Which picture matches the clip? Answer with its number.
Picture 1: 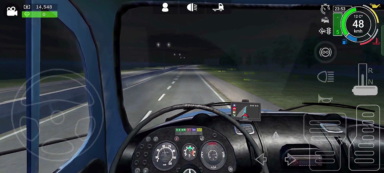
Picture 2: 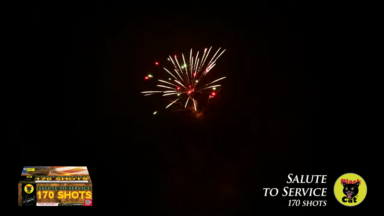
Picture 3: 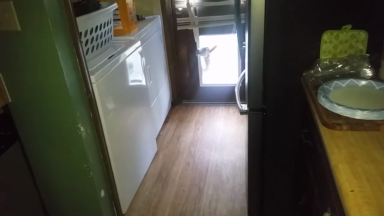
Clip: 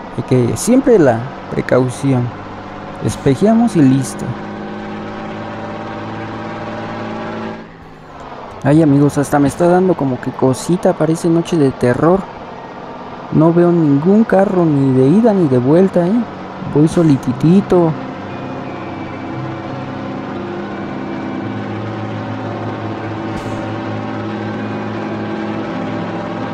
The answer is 1